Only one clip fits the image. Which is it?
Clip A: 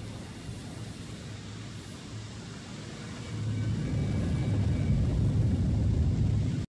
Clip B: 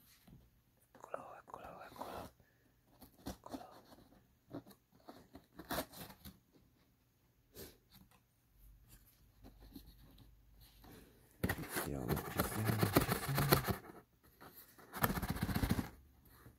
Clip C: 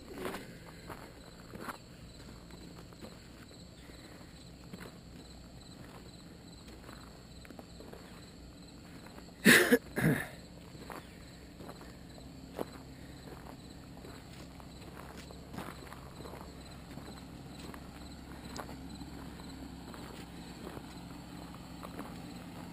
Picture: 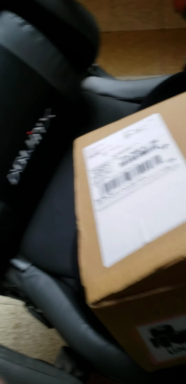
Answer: B